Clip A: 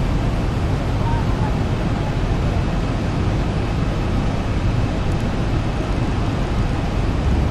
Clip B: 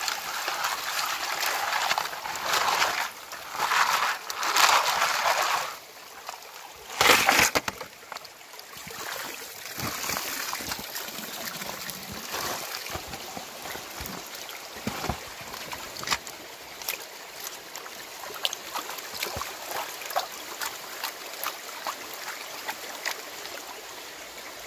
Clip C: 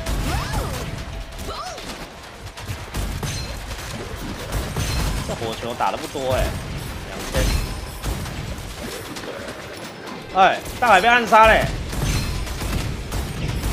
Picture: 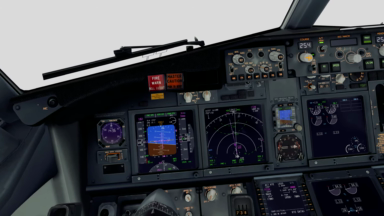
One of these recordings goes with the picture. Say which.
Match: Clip A